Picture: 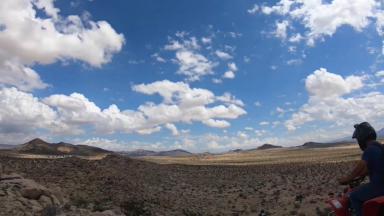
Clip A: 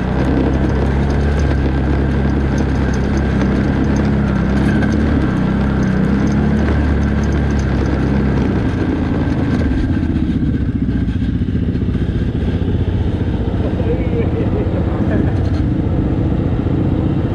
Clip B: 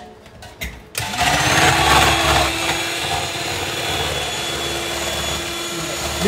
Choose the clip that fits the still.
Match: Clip A